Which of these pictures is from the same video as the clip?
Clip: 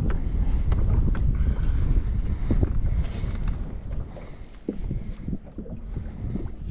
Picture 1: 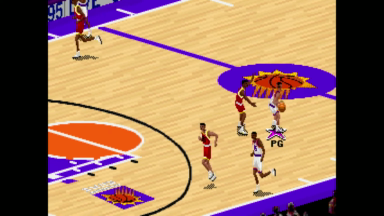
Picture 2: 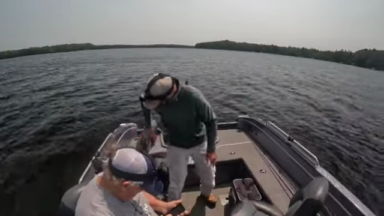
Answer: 2